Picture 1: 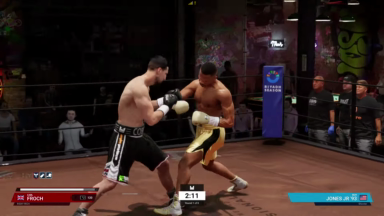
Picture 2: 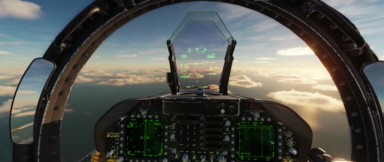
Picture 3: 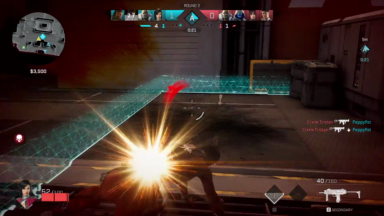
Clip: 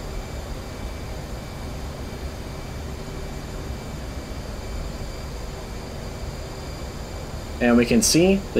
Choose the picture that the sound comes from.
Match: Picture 2